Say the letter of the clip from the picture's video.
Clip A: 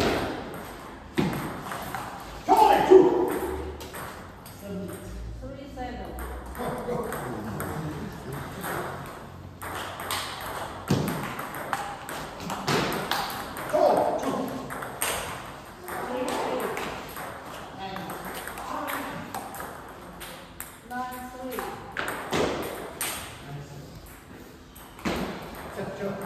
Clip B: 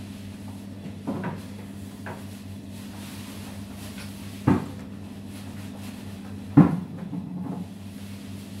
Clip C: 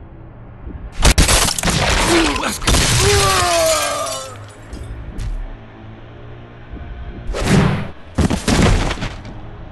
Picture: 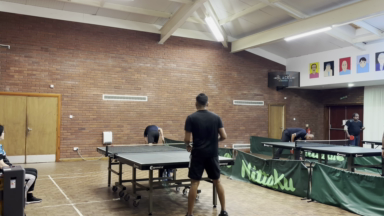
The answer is A